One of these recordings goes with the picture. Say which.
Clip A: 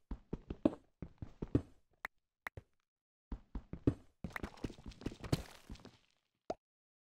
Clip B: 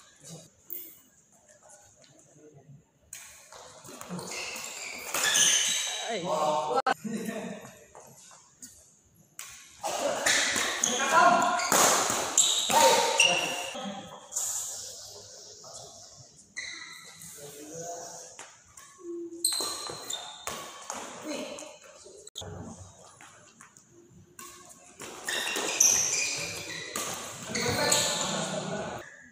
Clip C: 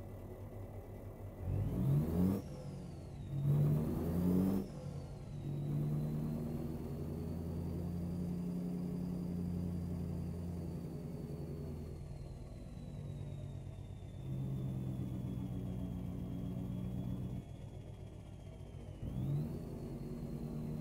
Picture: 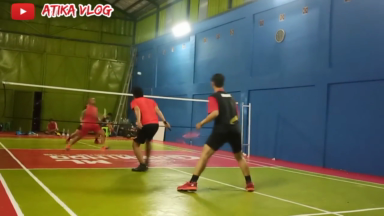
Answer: B